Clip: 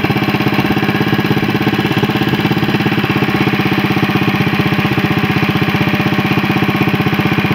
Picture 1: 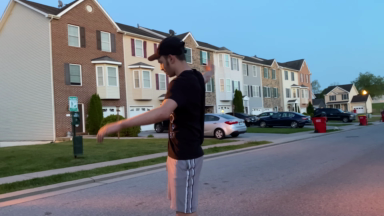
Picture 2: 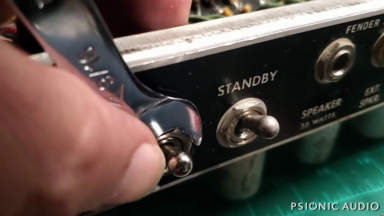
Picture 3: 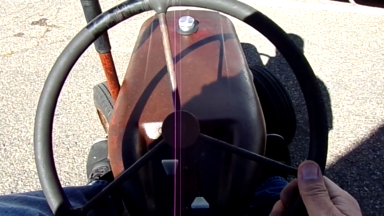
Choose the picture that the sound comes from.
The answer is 3